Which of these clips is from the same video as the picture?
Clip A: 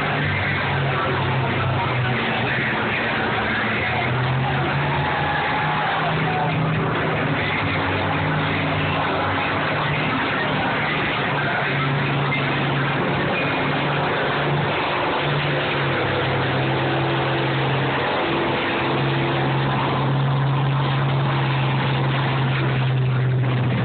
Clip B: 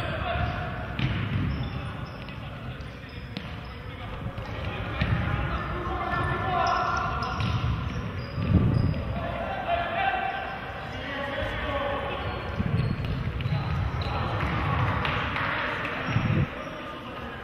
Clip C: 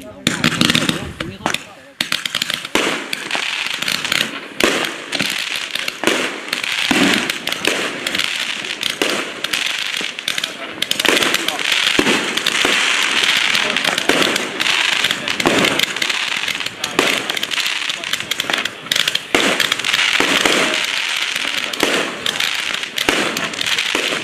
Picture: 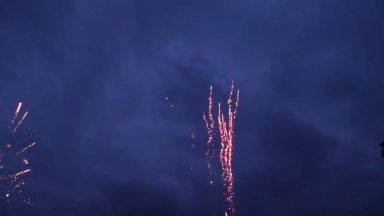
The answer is C